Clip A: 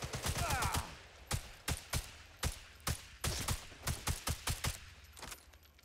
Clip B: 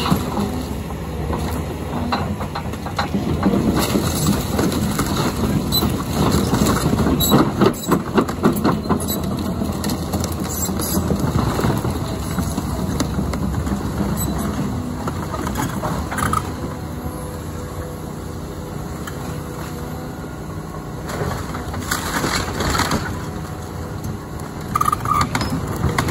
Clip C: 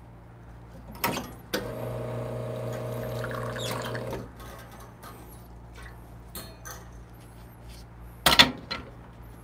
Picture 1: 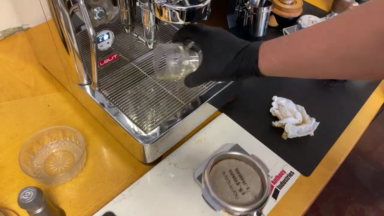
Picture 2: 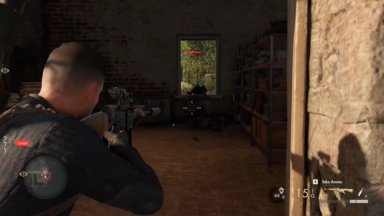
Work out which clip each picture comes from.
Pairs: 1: C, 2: A